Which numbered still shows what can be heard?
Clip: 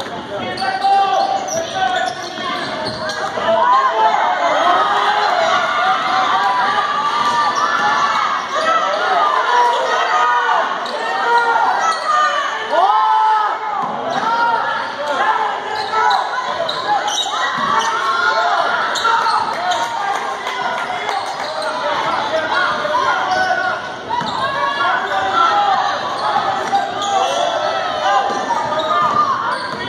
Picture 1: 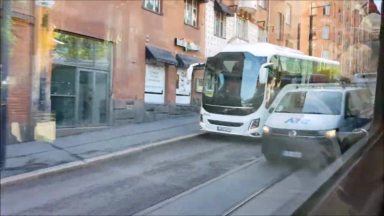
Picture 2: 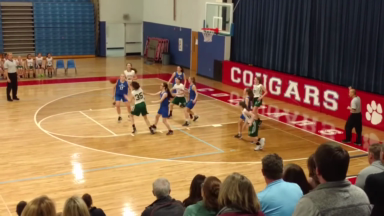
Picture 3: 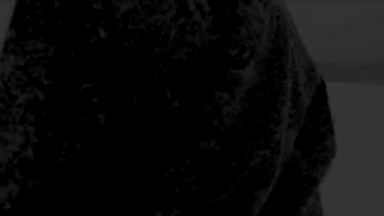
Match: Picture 2